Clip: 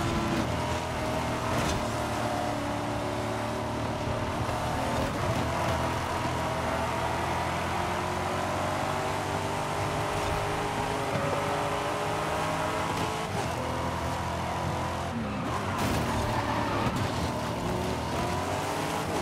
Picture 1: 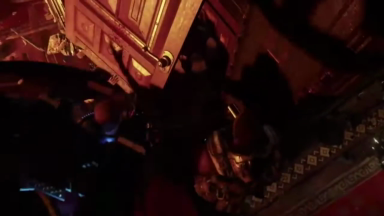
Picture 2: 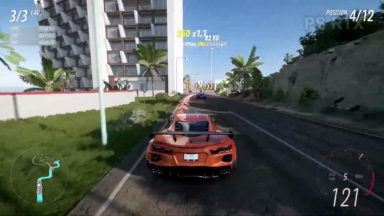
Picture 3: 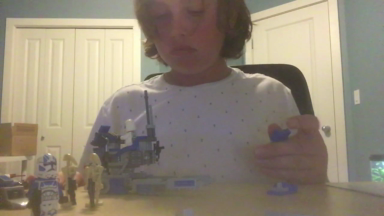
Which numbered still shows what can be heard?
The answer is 2